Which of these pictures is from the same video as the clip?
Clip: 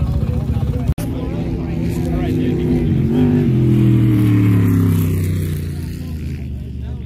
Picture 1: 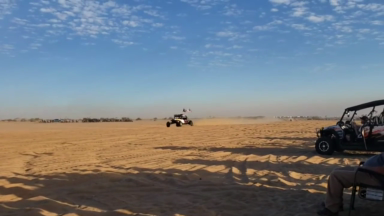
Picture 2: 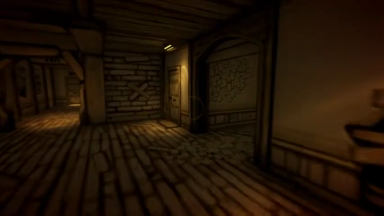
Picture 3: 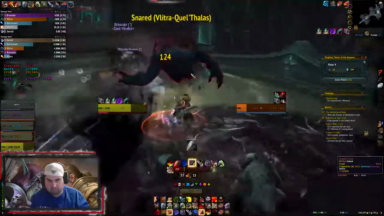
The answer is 1